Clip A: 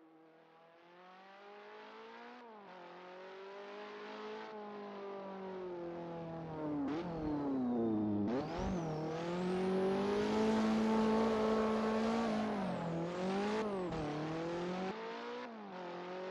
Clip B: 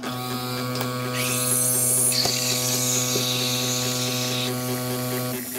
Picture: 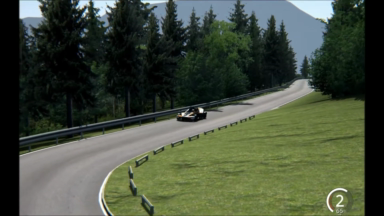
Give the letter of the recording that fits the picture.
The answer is A